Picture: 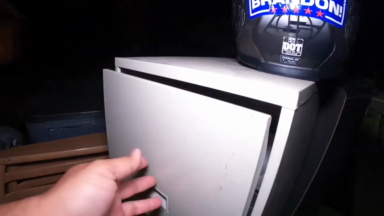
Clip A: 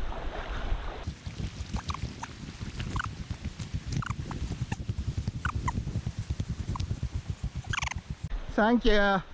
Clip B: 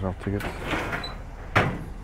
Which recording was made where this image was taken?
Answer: B